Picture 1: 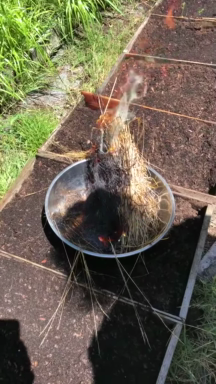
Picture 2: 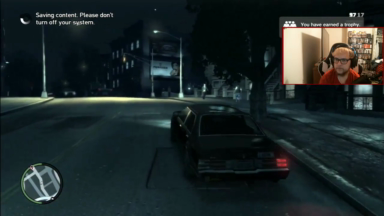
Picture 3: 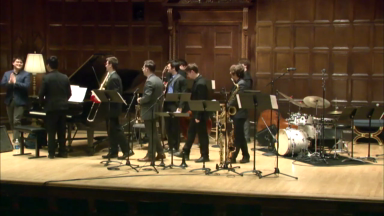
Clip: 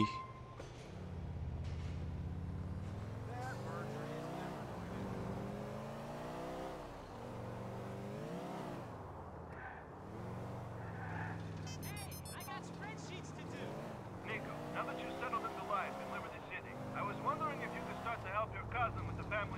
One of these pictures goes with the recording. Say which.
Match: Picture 2